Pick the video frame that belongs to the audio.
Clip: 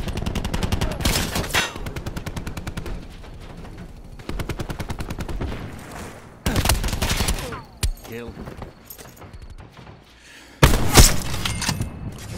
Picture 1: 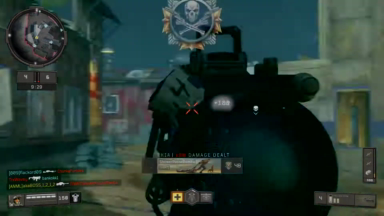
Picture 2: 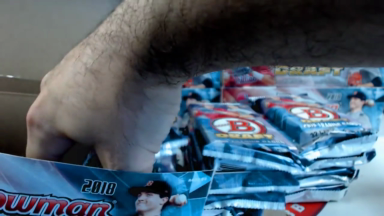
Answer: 1